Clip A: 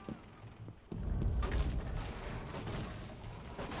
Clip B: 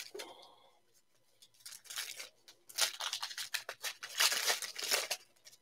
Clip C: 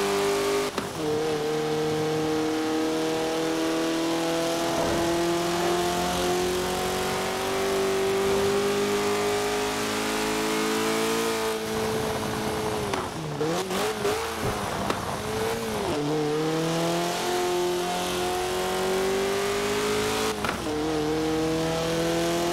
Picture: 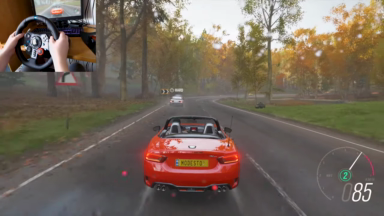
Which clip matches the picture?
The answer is C